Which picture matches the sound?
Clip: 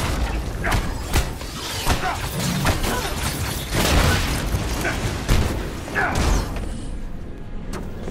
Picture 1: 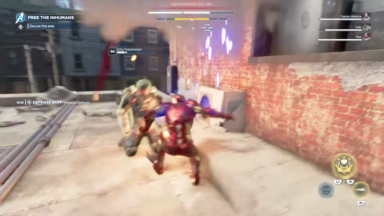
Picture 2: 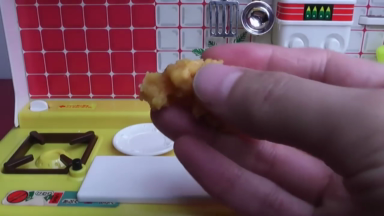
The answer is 1